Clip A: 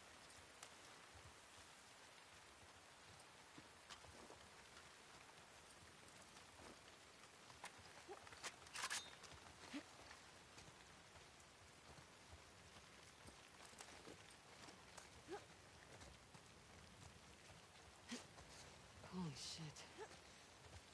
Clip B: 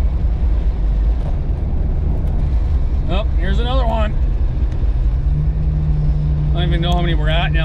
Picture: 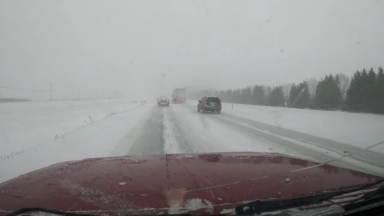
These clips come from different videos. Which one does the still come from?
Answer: B